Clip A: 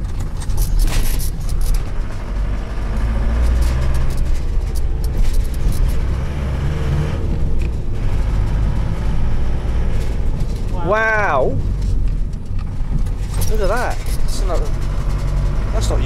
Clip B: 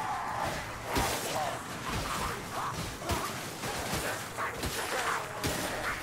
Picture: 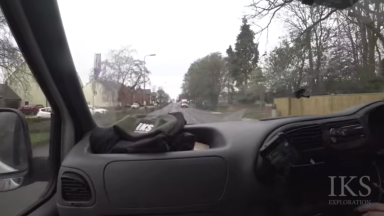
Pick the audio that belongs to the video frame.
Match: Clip A